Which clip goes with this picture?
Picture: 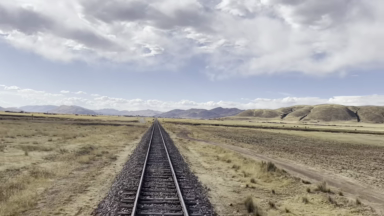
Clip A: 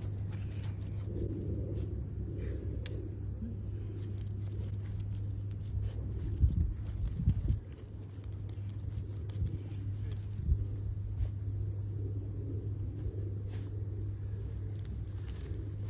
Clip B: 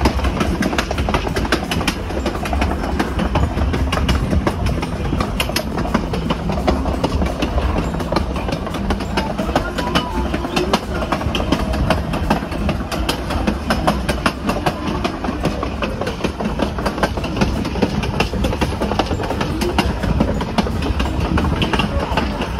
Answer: B